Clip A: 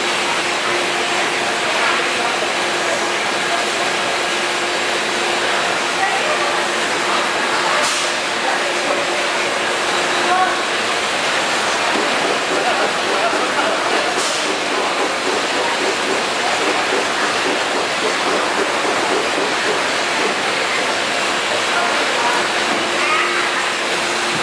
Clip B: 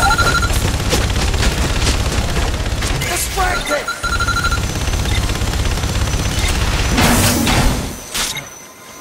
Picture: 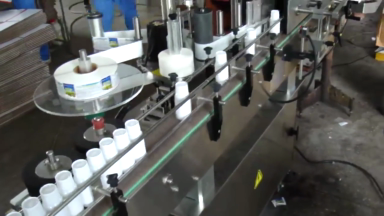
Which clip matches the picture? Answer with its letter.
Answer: A